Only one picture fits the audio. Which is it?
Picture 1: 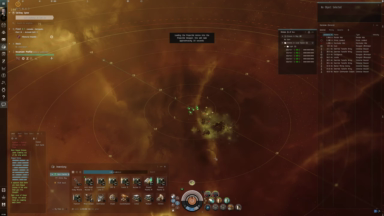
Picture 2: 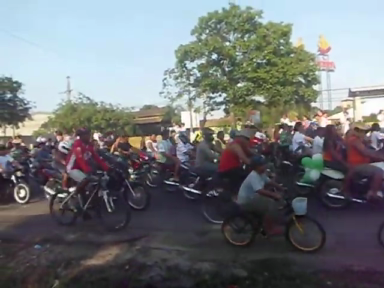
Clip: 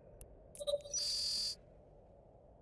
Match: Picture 1